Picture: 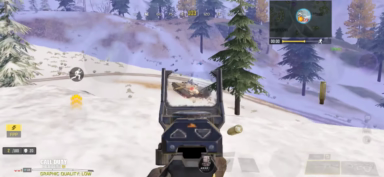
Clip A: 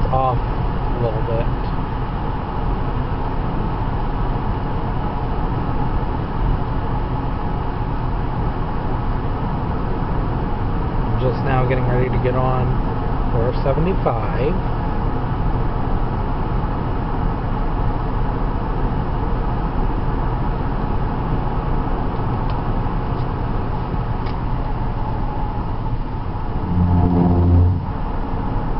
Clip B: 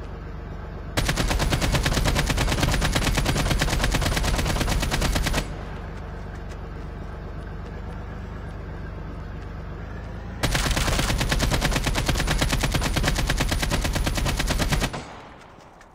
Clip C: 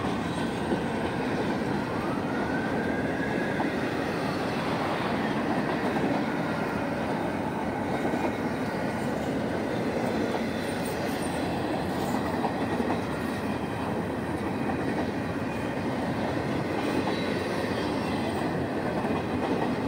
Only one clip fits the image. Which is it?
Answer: B